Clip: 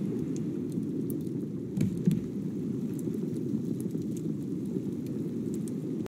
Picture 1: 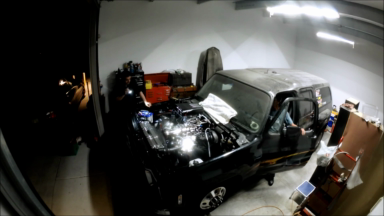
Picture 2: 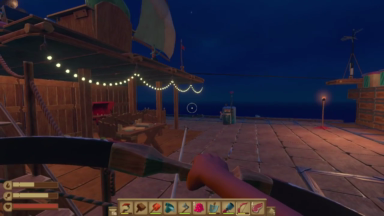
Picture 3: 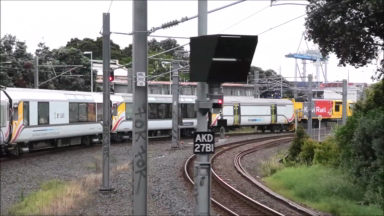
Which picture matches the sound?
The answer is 2